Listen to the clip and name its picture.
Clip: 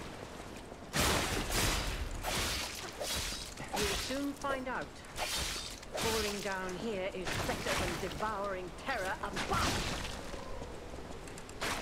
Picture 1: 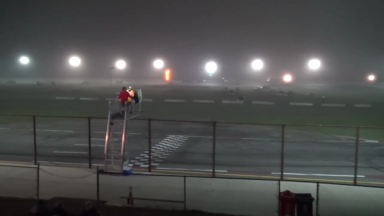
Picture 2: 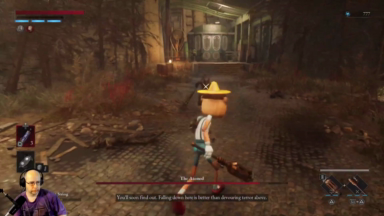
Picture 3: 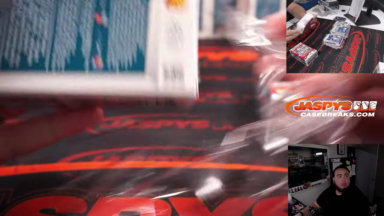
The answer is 2